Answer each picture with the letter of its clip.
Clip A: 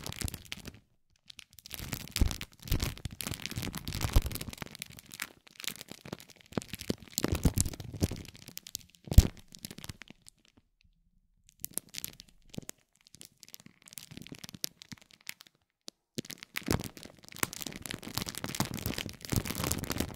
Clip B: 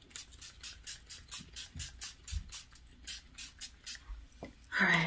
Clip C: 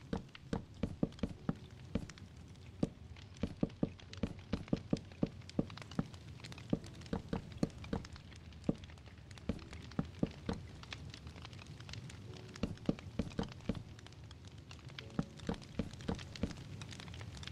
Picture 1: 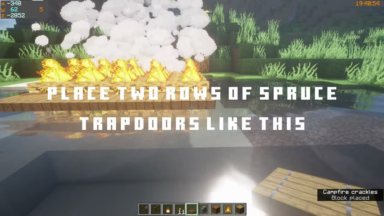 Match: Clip C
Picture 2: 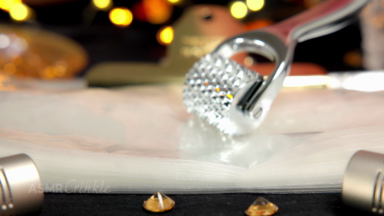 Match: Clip A